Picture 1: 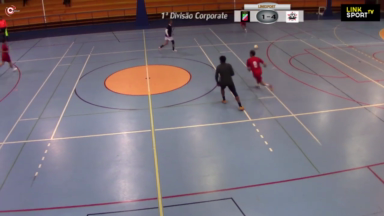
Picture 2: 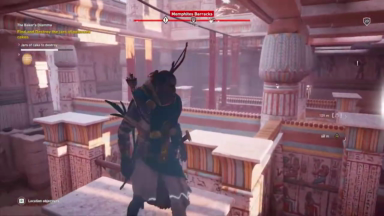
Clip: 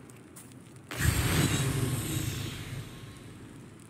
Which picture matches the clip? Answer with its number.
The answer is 2